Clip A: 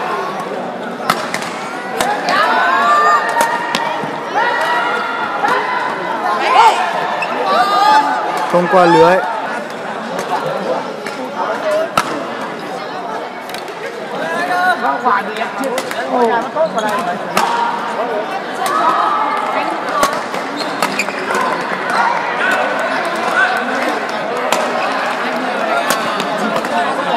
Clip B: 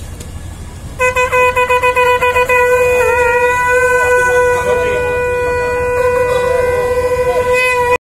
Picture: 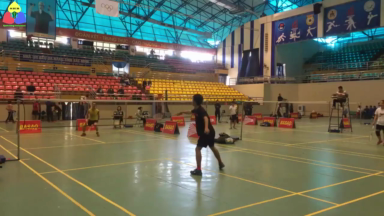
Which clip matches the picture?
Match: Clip A